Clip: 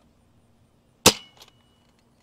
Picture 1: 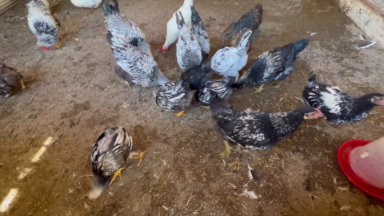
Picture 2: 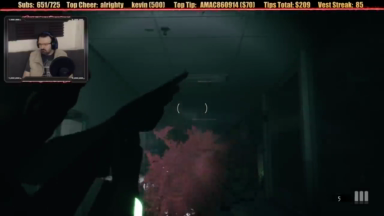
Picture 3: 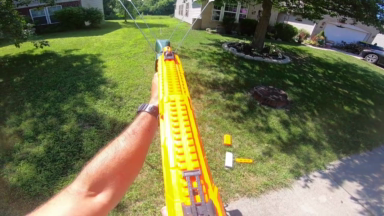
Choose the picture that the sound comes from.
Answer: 3